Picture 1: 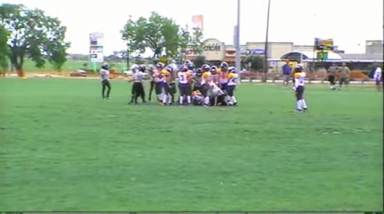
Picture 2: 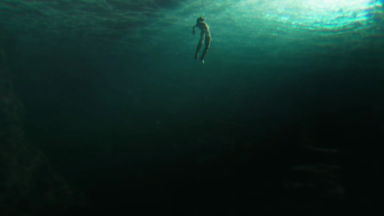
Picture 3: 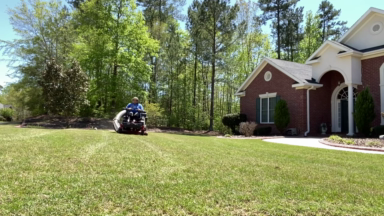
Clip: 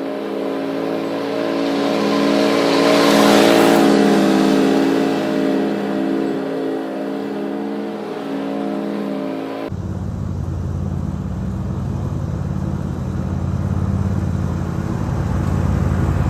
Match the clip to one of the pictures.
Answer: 3